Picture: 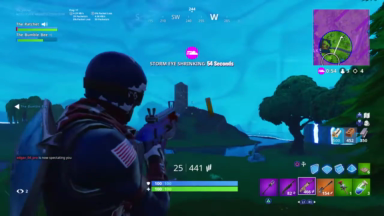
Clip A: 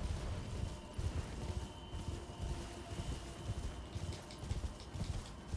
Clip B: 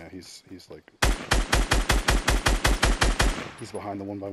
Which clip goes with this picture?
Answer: B